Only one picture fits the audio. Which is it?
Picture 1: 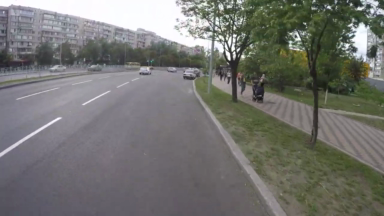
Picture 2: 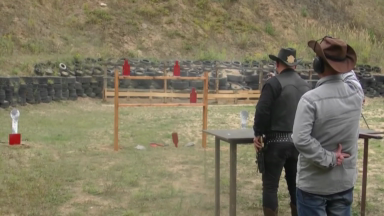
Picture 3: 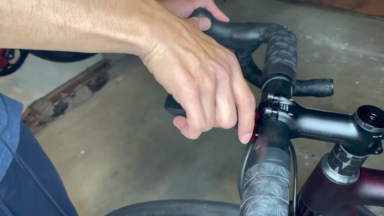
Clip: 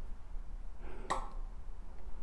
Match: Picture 3